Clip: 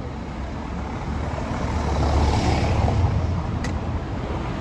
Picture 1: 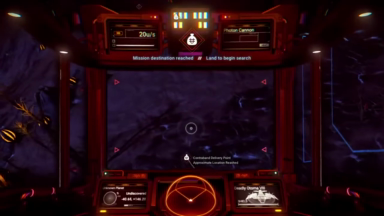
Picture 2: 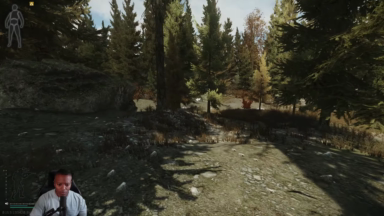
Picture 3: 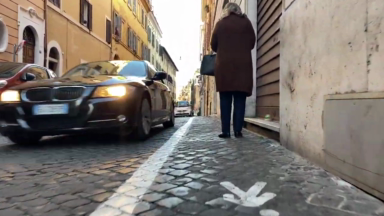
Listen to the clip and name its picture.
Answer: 3